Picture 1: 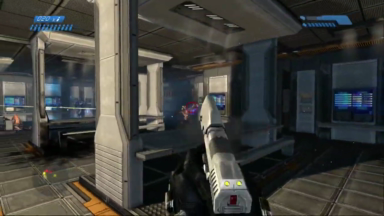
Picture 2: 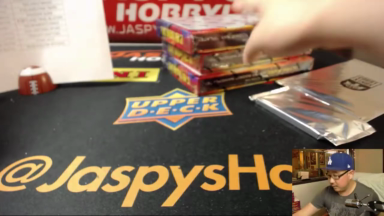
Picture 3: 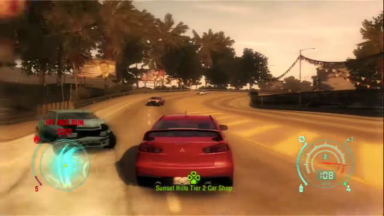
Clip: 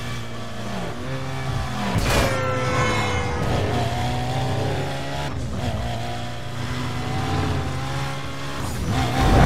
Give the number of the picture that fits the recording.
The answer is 3